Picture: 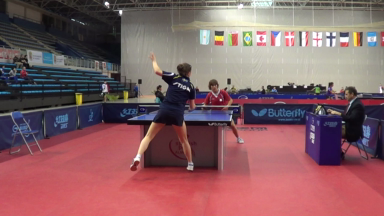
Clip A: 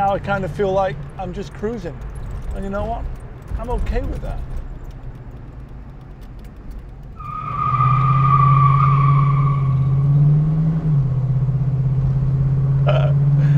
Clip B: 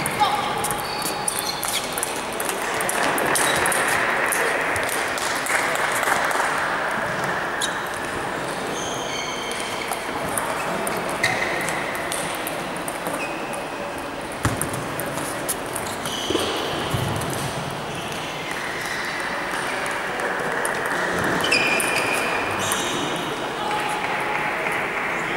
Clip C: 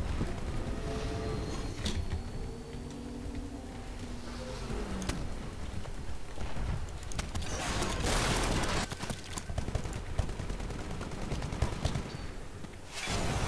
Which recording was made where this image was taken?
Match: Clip B